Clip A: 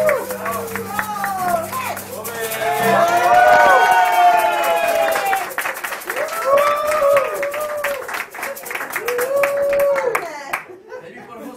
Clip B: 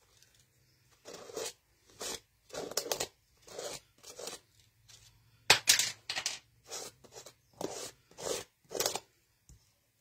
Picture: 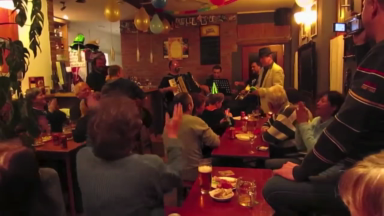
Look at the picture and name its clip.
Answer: A